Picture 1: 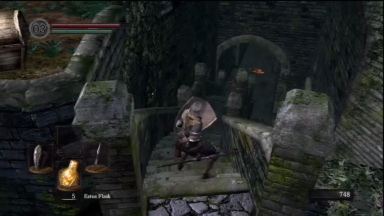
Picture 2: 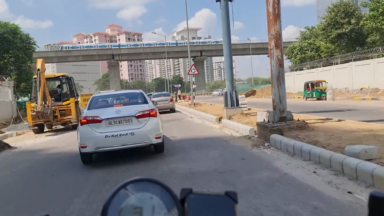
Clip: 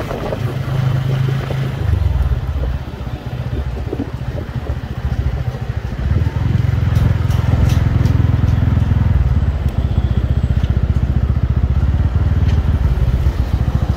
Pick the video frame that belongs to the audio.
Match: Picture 2